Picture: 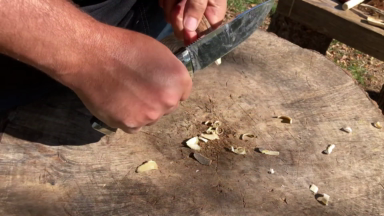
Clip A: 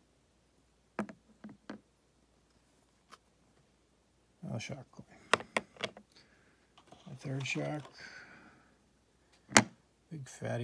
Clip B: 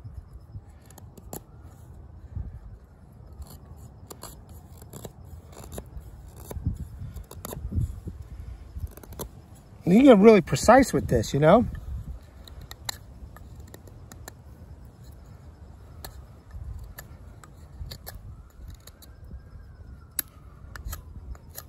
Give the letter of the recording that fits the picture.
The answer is B